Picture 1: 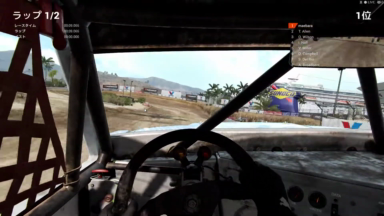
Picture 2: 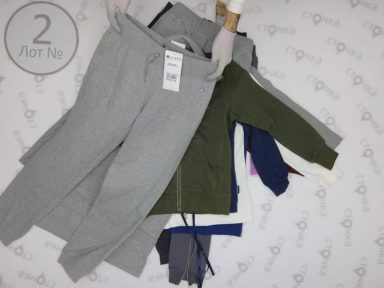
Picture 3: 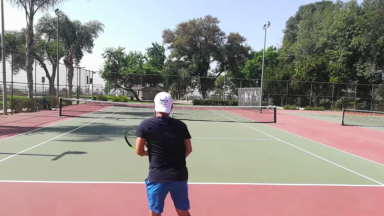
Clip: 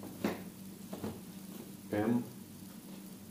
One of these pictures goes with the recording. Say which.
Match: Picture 2